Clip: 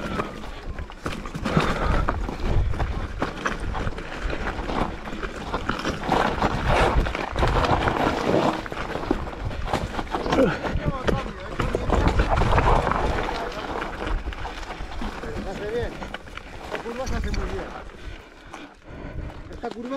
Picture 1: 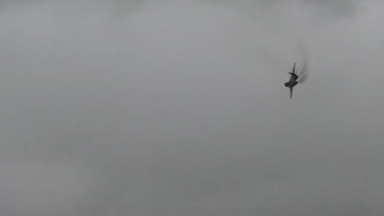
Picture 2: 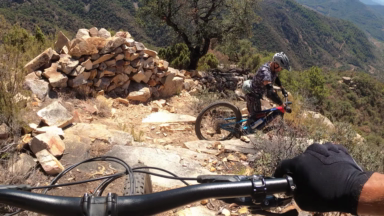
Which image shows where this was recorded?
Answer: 2